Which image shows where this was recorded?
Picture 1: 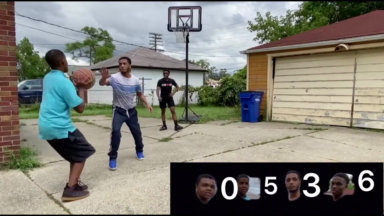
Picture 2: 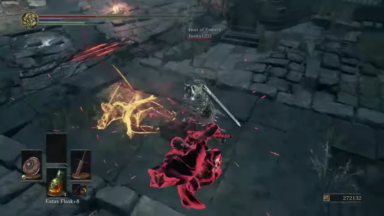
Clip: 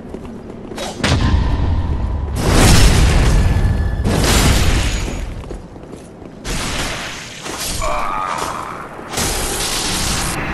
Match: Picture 2